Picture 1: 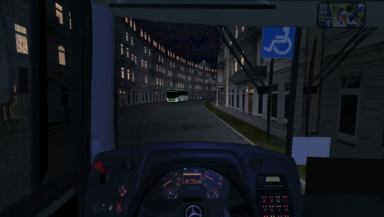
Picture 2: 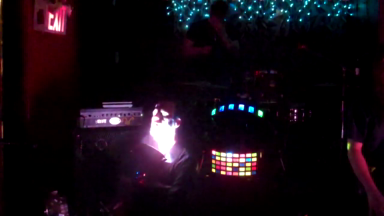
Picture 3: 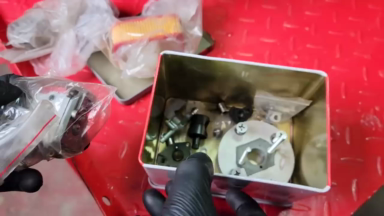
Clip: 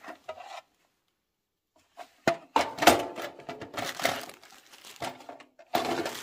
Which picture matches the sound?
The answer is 3